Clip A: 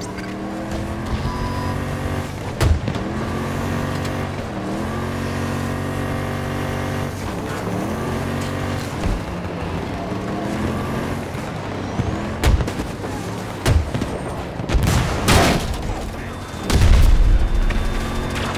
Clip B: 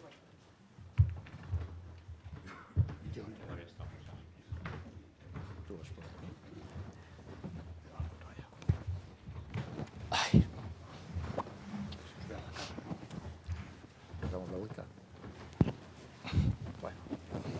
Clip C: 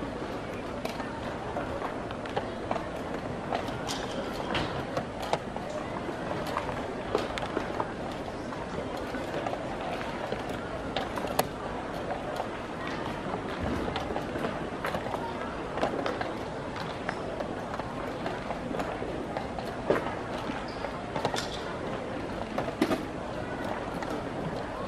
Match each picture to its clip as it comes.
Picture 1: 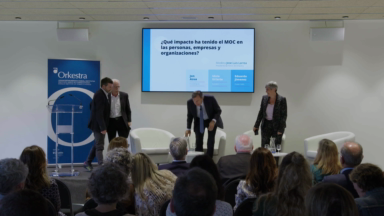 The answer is B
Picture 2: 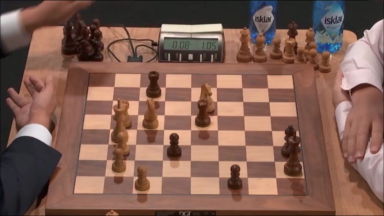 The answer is C